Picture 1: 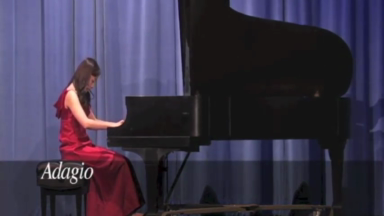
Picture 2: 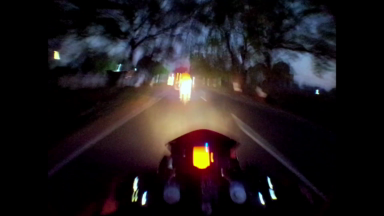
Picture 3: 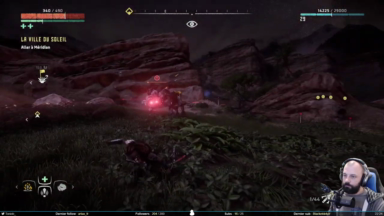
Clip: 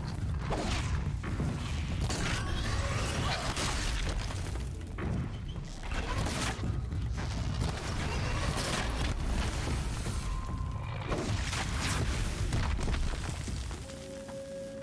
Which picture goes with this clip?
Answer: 3